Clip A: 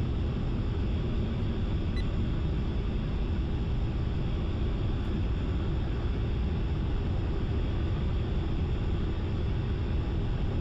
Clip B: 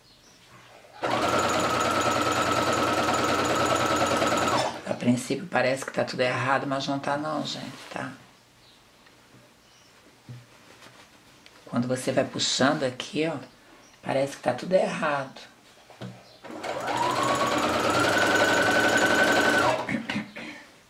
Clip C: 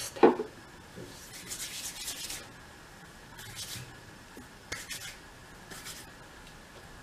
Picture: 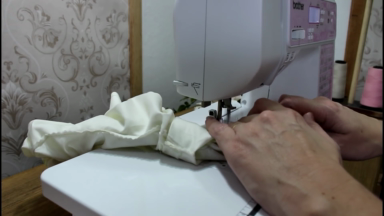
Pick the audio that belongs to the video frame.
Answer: B